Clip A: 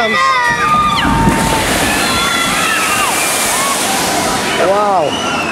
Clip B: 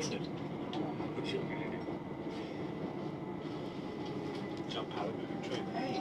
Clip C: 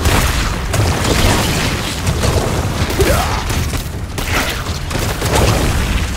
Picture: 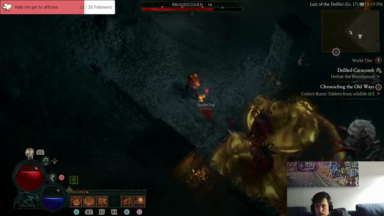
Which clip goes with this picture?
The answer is C